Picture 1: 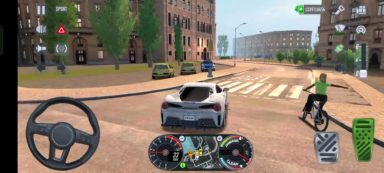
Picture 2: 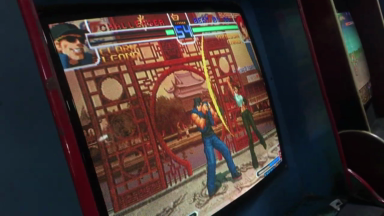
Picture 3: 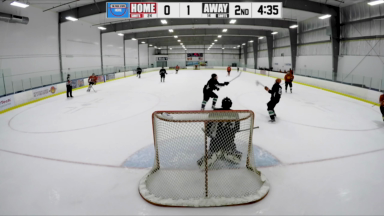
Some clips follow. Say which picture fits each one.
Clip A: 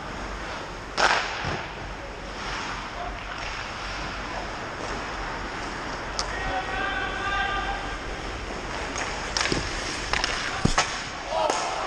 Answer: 3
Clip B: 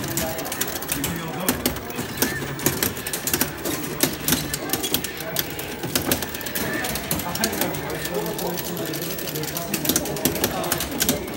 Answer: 2